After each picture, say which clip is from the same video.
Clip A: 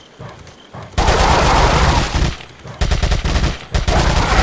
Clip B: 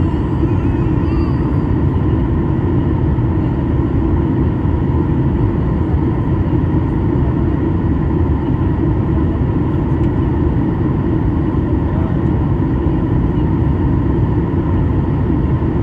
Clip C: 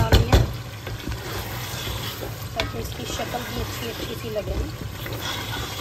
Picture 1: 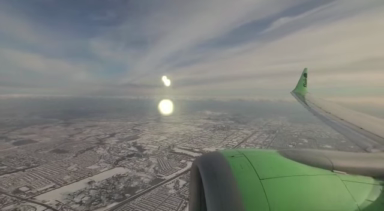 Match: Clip B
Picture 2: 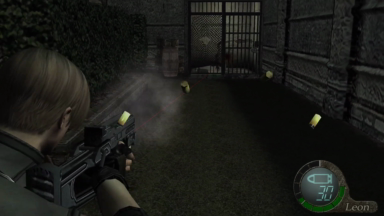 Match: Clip A